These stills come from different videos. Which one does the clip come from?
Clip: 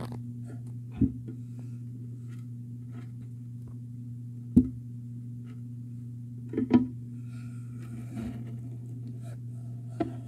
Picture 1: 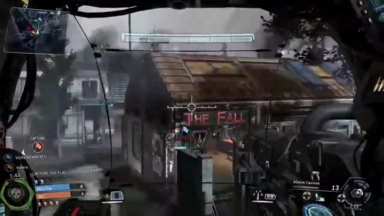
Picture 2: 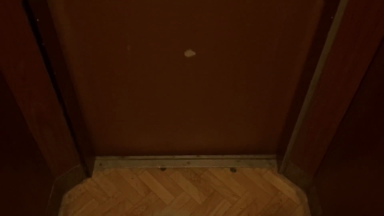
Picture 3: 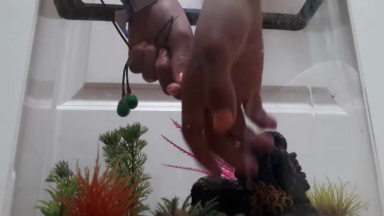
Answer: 3